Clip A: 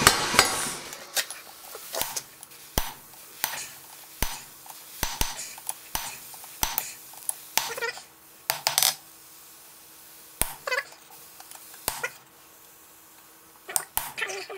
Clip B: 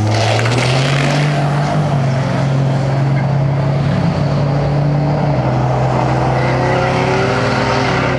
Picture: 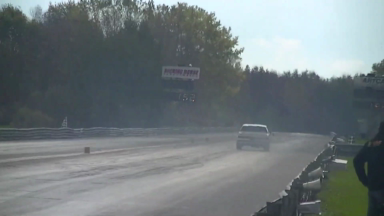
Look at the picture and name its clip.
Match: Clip B